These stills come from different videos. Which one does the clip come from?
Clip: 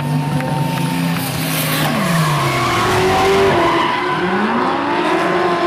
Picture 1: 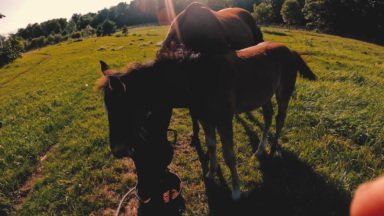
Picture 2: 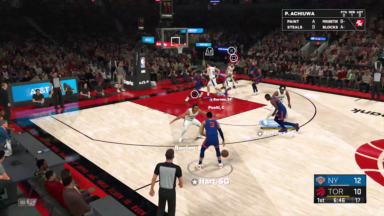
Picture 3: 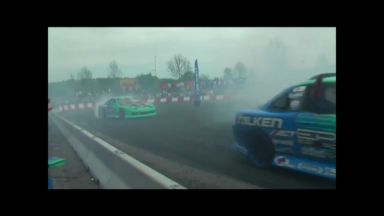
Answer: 3